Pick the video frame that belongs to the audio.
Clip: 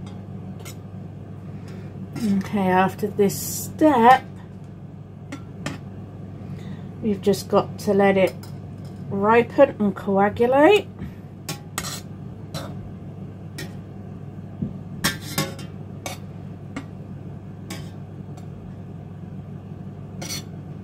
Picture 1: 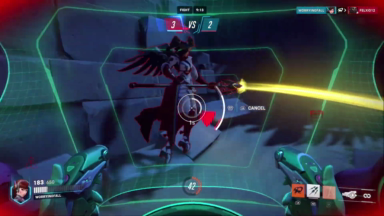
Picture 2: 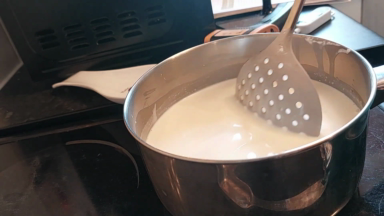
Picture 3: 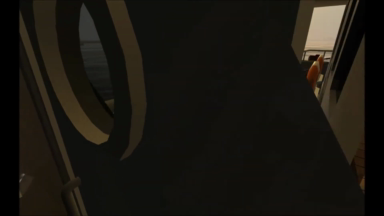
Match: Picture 2